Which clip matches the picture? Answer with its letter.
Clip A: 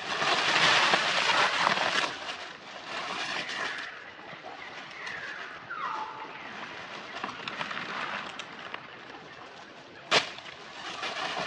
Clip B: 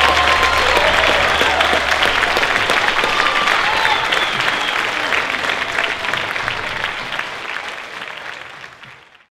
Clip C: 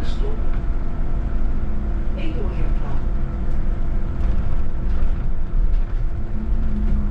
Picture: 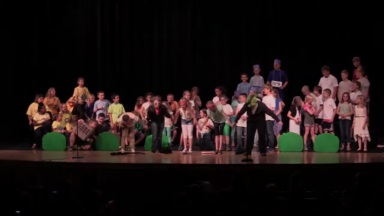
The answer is B